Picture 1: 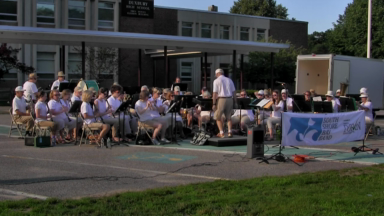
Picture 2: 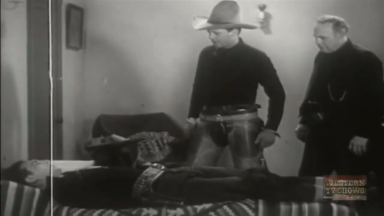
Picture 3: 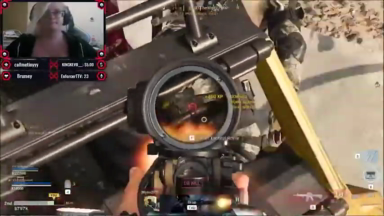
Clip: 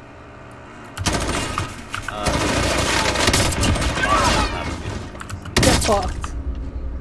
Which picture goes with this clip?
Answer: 3